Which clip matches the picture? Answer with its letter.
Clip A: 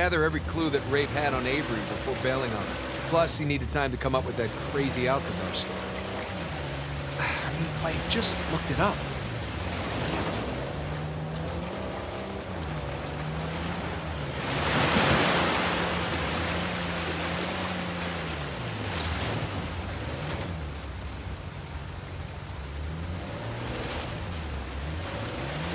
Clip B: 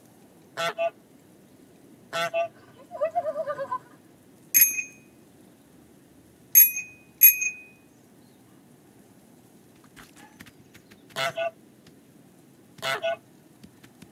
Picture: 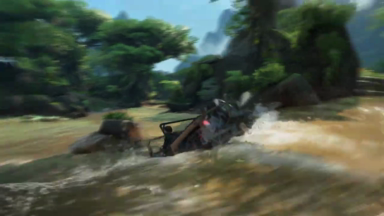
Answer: A